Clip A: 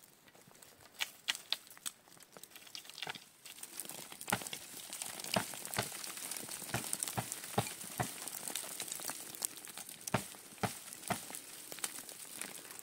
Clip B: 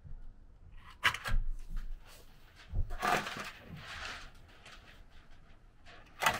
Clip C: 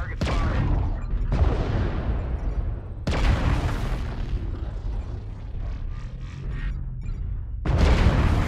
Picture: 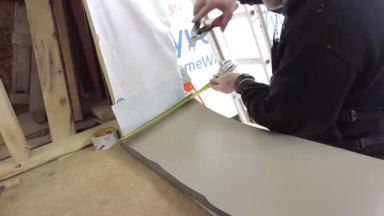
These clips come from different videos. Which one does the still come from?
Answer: B